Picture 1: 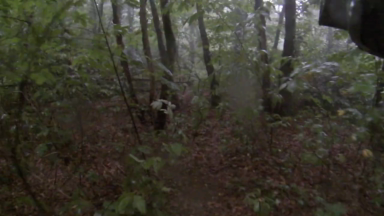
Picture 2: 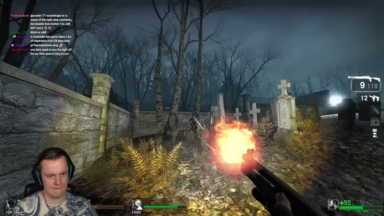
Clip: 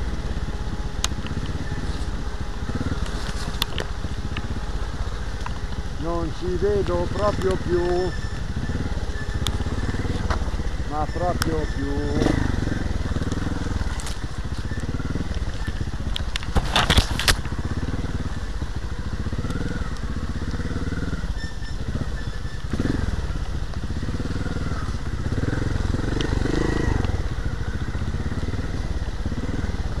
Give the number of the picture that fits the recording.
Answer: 1